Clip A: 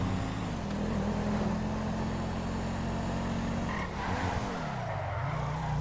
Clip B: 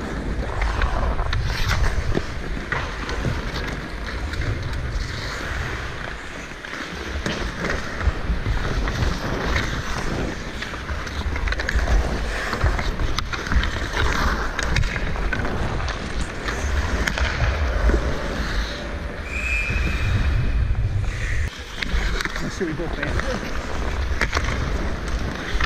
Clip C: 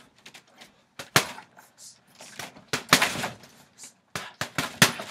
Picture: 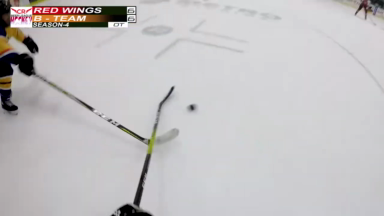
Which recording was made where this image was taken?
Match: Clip B